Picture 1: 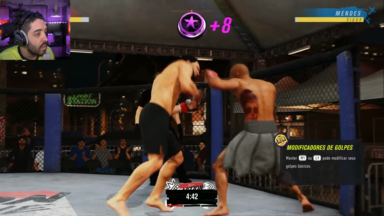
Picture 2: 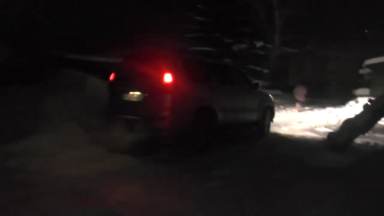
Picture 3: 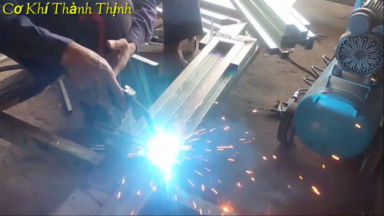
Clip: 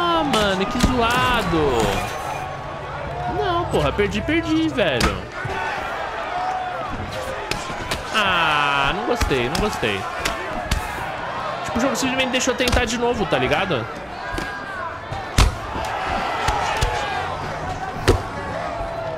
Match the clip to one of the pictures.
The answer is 1